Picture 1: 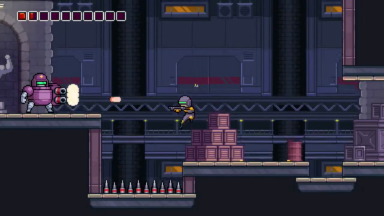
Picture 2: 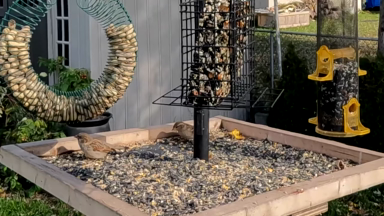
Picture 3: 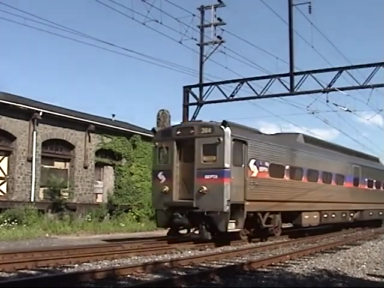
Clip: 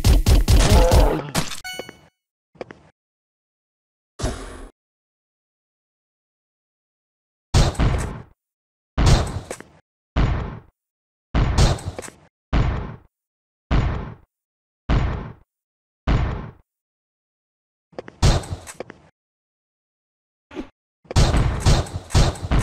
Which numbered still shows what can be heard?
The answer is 1